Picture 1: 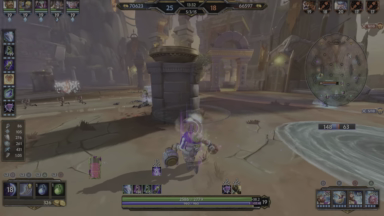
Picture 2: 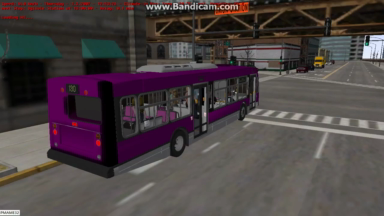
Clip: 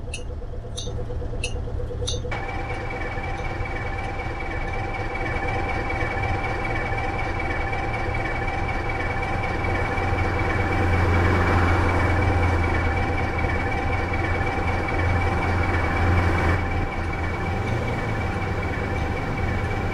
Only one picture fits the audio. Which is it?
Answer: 2